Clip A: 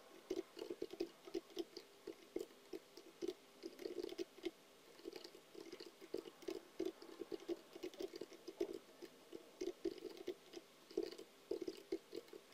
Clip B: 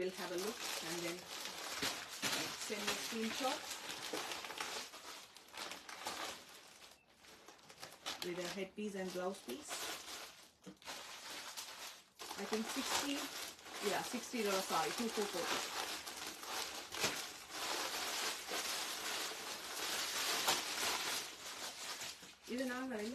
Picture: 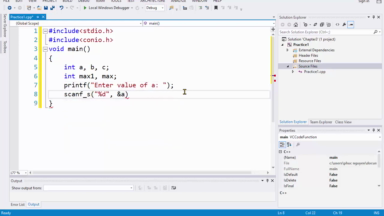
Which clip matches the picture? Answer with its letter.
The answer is A